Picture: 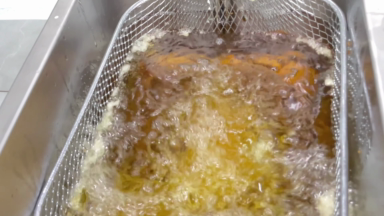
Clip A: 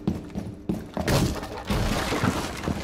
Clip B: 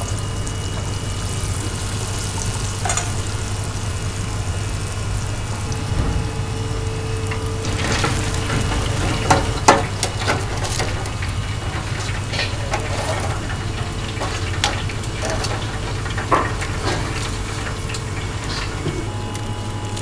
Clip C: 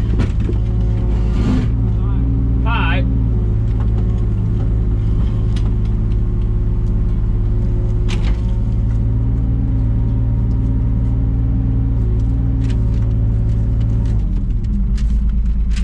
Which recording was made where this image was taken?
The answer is B